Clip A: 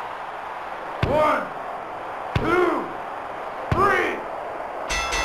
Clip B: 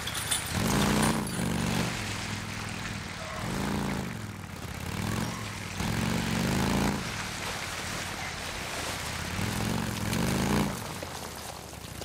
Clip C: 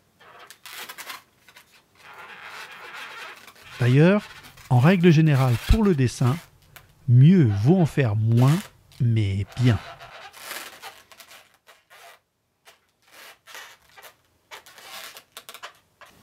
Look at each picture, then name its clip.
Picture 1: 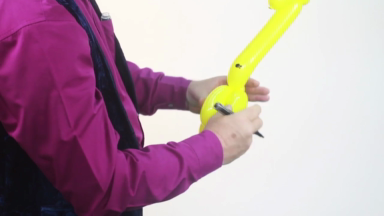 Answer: C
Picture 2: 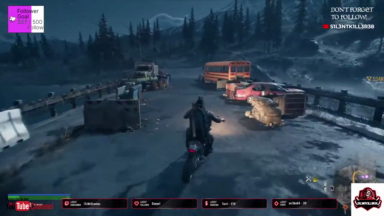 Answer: B